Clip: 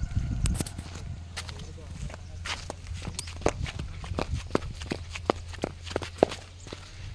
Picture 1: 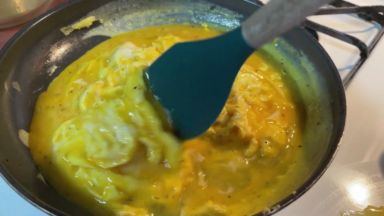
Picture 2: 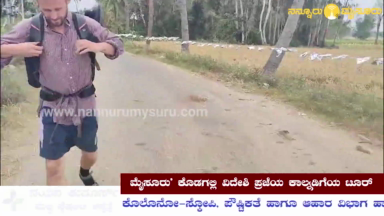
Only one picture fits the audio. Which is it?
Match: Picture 2